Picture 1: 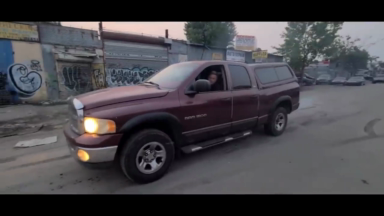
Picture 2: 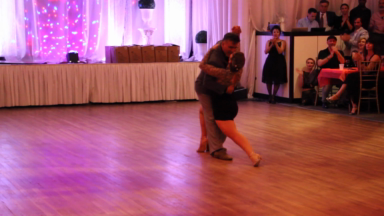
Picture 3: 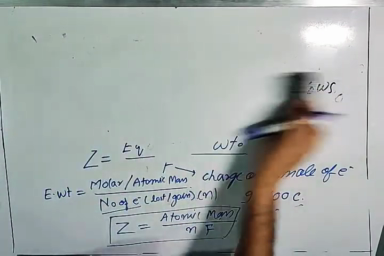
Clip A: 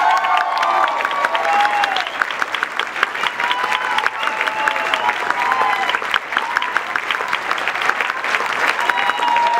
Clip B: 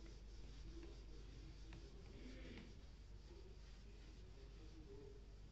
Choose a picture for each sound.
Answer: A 2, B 3